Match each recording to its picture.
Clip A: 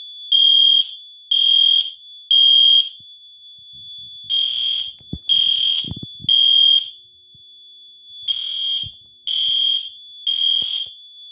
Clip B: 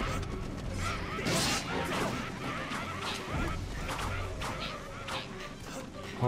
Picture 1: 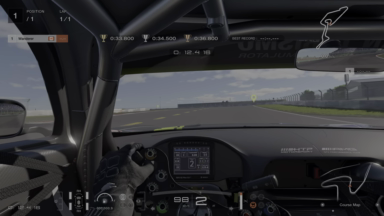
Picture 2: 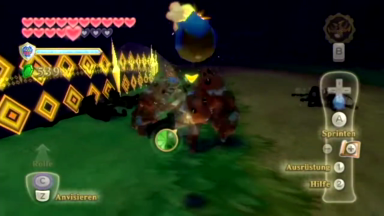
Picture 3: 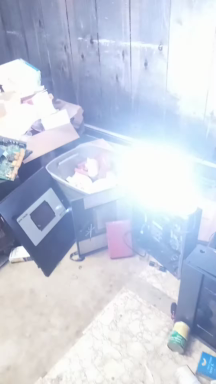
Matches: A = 3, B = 2